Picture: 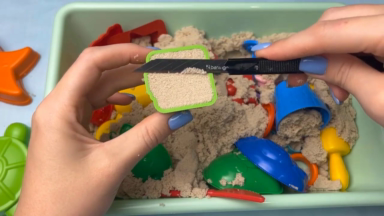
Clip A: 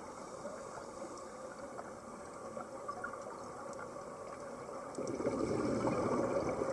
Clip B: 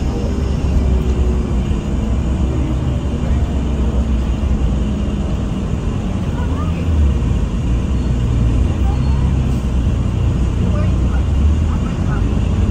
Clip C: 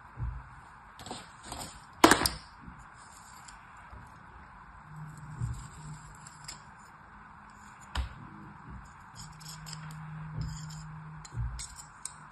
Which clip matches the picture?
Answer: C